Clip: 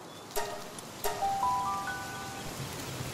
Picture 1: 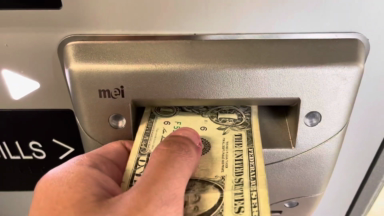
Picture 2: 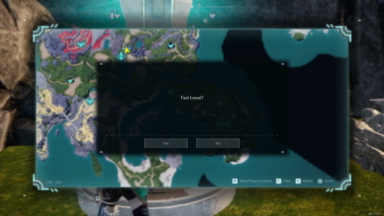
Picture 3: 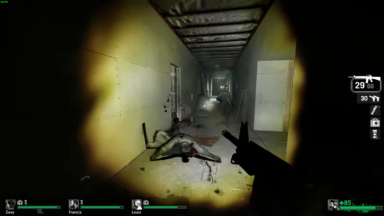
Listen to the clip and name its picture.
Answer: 2